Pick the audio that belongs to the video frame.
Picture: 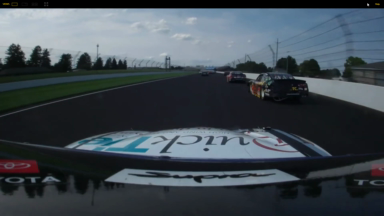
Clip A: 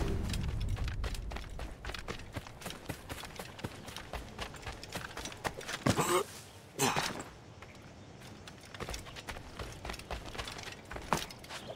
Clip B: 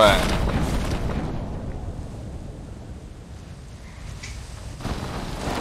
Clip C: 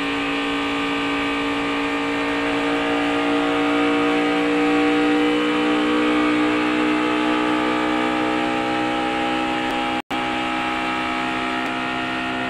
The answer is C